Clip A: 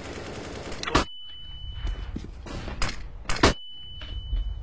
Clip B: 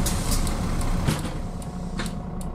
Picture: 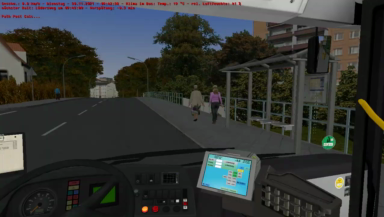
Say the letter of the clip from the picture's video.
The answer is B